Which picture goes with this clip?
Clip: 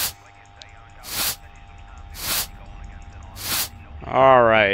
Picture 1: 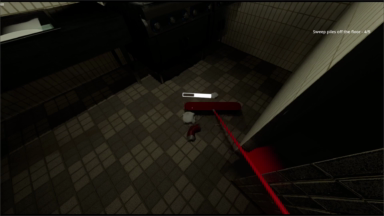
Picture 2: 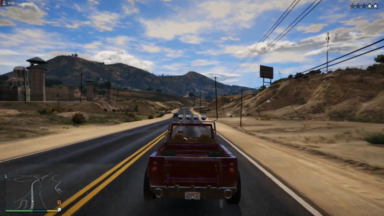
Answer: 1